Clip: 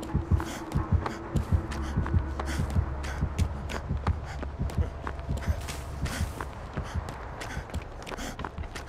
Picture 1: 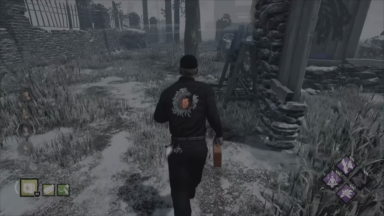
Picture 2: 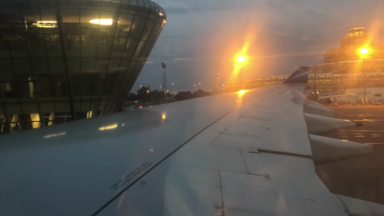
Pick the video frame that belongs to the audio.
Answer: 1